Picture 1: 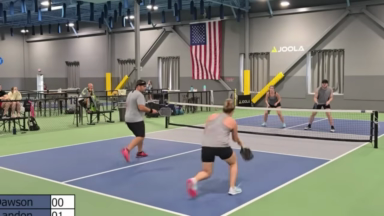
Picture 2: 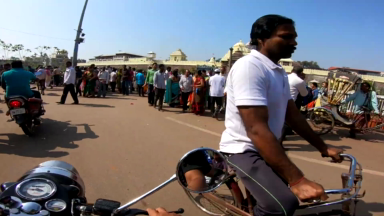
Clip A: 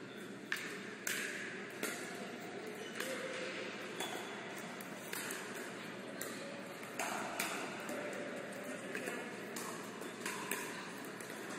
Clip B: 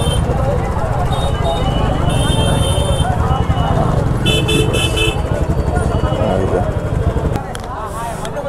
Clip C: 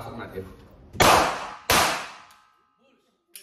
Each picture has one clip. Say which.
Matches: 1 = A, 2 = B